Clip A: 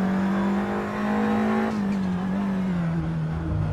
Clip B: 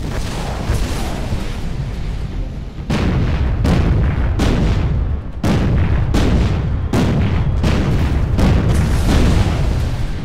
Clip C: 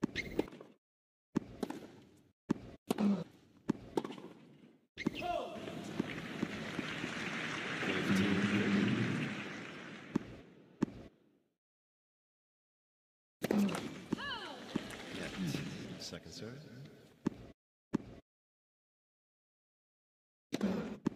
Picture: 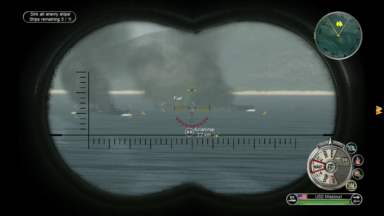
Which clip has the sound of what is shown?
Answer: B